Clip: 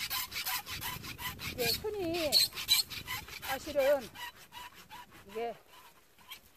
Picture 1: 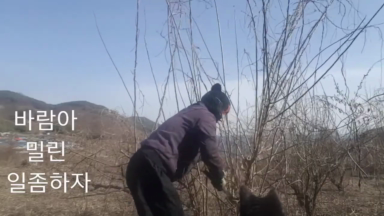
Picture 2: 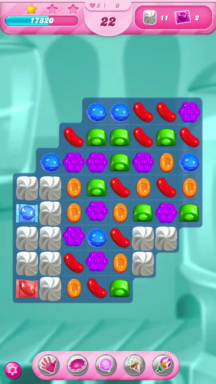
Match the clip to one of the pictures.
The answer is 1